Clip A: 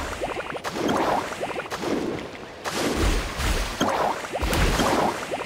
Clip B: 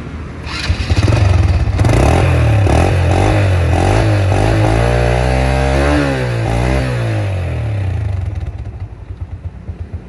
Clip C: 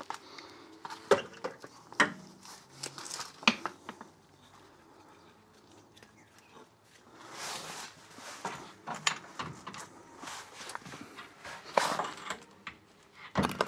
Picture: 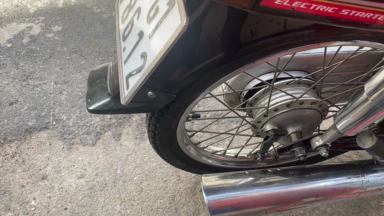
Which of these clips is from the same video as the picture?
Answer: B